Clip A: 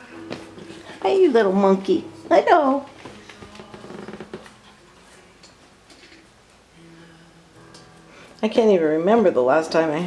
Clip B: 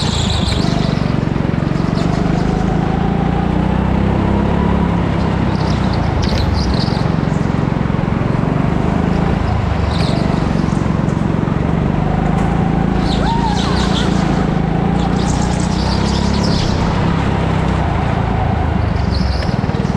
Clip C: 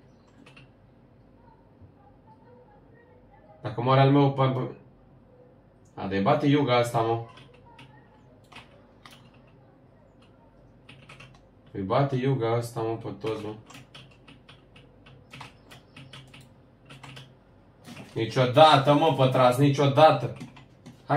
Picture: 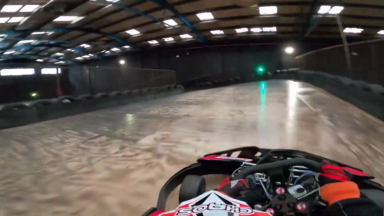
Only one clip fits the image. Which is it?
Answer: B